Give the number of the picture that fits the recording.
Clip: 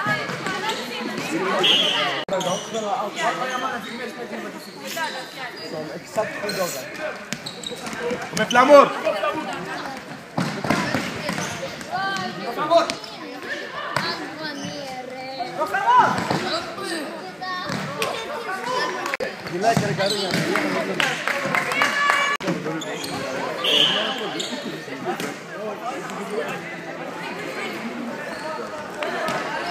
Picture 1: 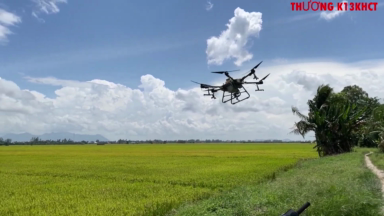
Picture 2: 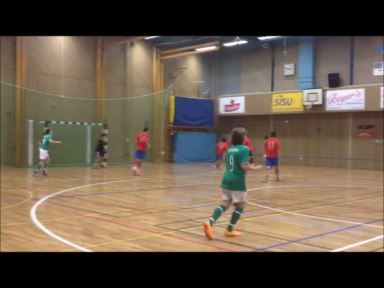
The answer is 2